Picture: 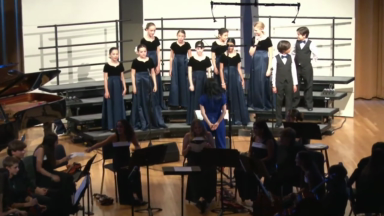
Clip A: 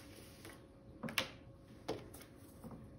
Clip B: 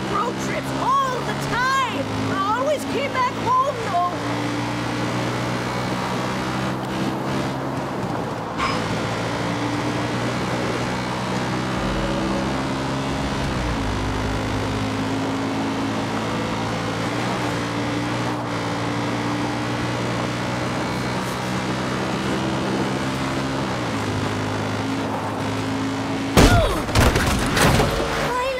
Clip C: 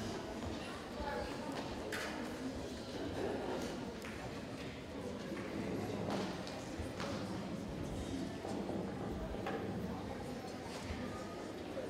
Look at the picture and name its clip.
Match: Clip C